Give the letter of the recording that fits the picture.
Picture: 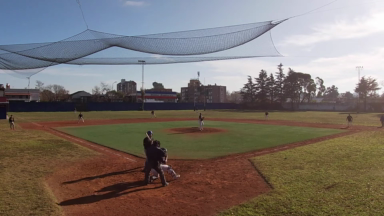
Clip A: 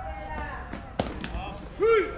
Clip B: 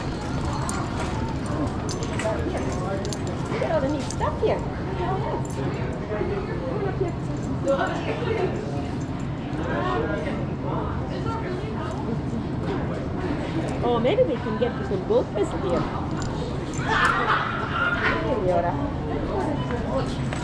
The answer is A